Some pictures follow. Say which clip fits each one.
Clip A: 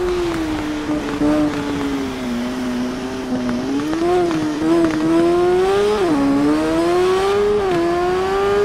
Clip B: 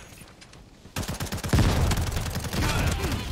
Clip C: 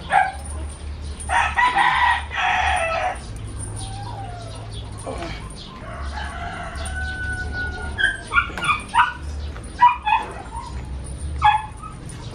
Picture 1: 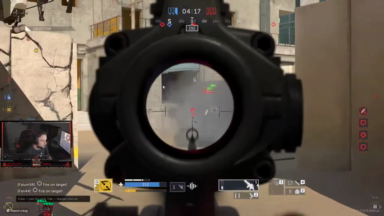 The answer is B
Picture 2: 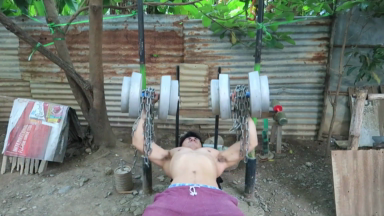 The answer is C